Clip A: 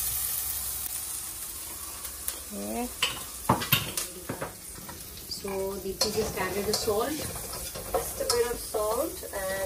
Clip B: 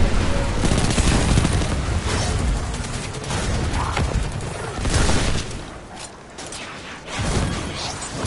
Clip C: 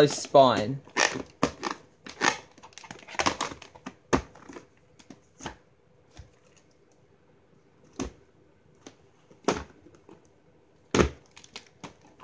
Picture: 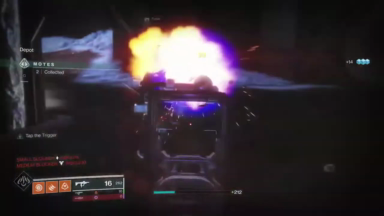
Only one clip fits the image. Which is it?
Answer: B